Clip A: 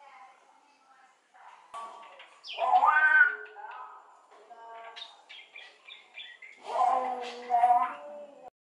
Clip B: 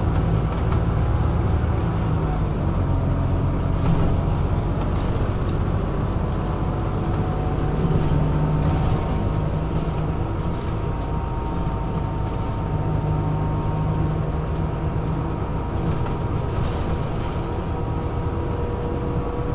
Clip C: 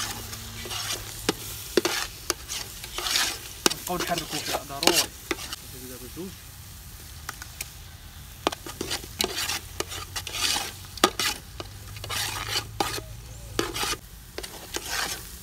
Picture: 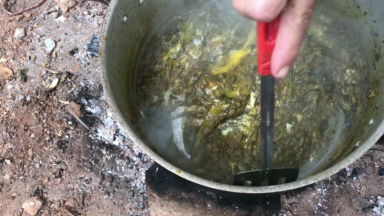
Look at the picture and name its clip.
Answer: C